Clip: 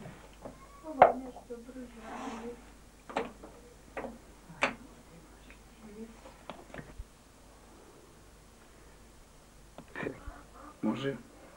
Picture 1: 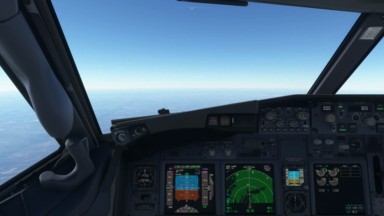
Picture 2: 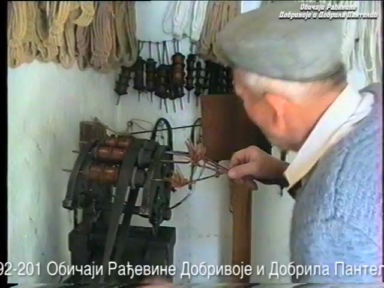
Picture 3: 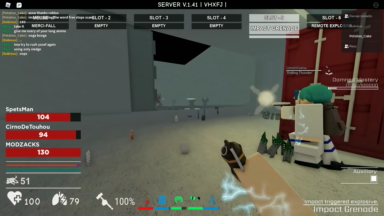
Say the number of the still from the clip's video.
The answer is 2